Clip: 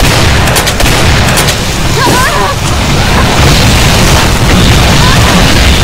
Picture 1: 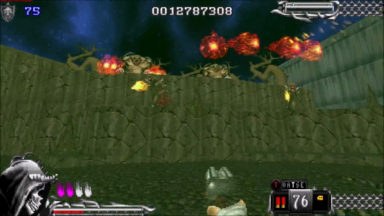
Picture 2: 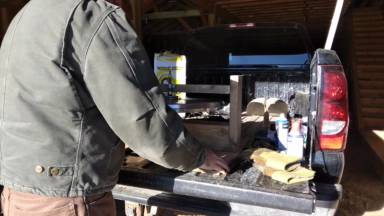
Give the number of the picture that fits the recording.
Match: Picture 1